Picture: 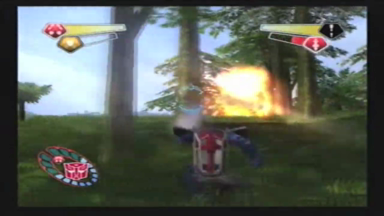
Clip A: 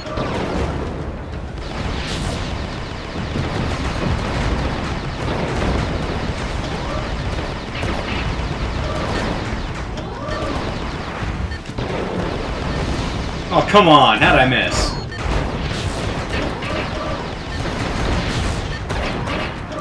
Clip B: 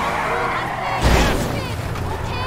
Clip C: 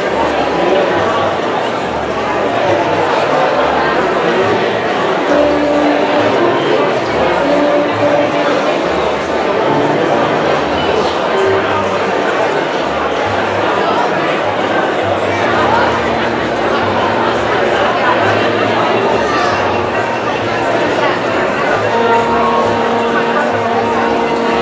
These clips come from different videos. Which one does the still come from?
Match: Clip A